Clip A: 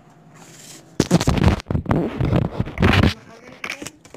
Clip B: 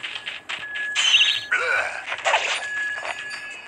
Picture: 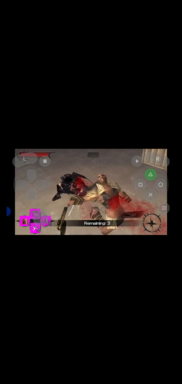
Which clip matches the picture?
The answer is B